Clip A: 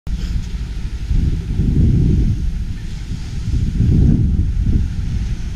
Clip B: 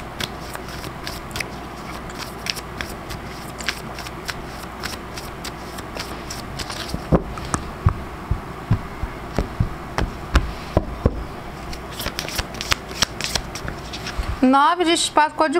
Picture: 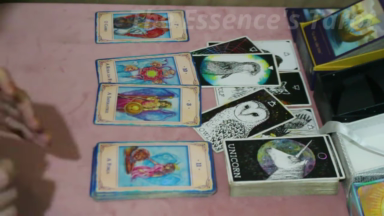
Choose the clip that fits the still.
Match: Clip B